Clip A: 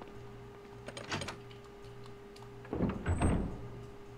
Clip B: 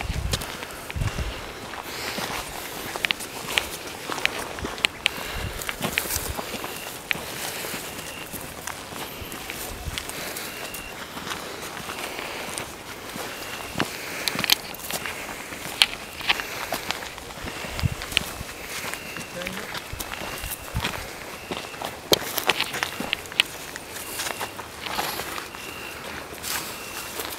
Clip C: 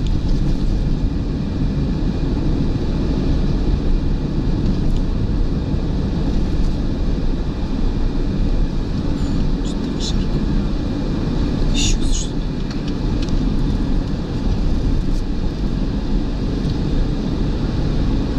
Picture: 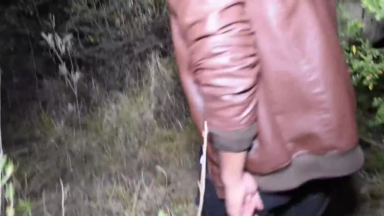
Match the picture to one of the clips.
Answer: B